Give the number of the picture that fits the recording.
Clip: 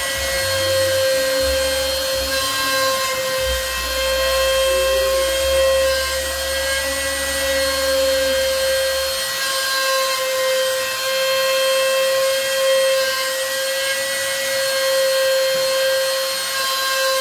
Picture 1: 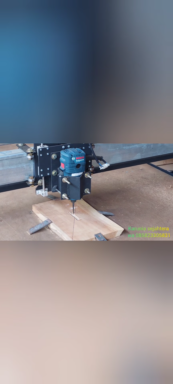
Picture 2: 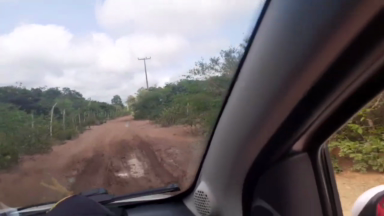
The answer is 1